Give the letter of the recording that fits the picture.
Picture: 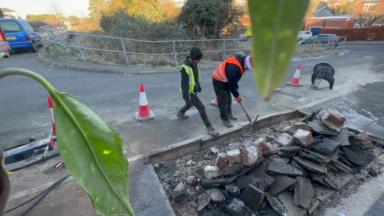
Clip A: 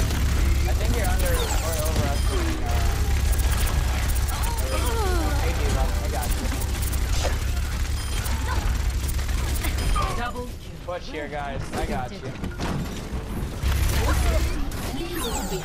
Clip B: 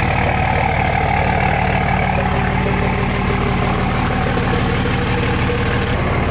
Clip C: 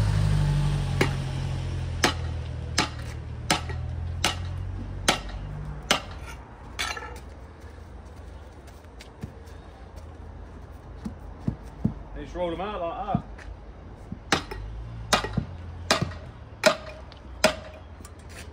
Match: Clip C